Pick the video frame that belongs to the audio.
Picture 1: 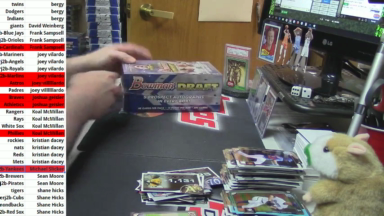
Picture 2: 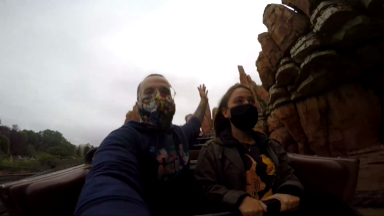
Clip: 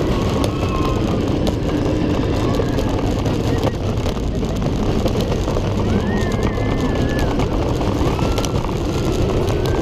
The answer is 2